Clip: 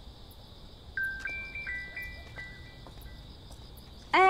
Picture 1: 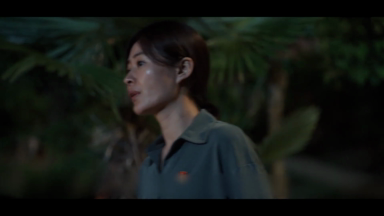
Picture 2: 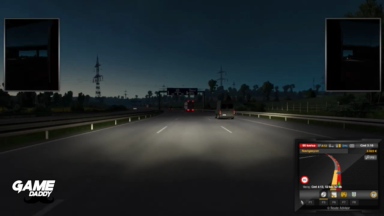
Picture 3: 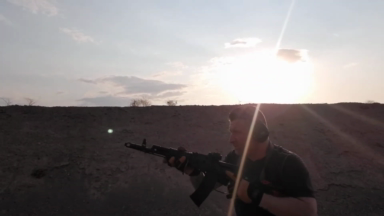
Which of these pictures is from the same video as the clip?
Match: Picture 1